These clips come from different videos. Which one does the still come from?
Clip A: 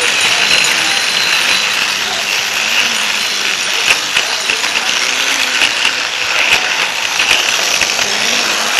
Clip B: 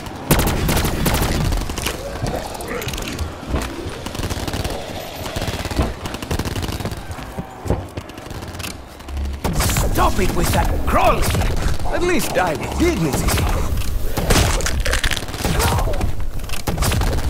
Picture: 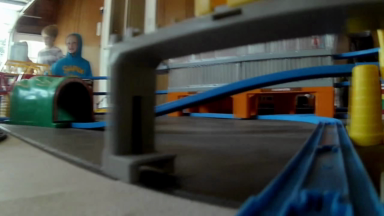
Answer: A